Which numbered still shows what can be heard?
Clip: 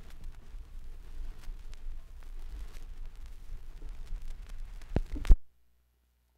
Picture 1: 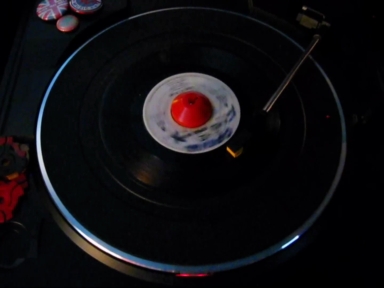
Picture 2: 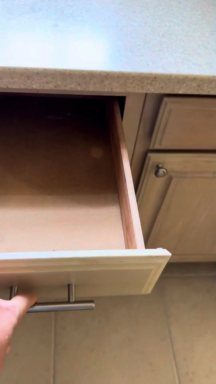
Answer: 1